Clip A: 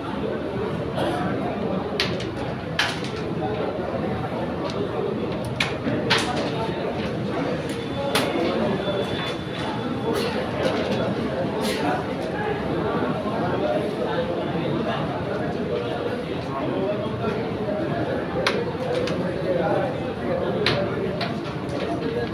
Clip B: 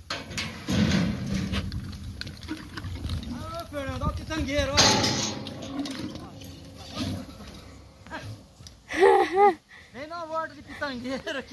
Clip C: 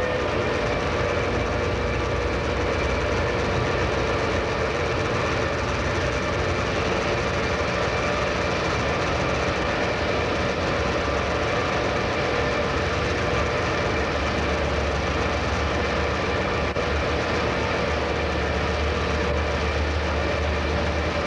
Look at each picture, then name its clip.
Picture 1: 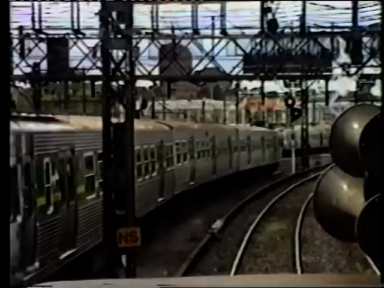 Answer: C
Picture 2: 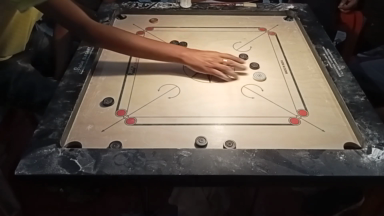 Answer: A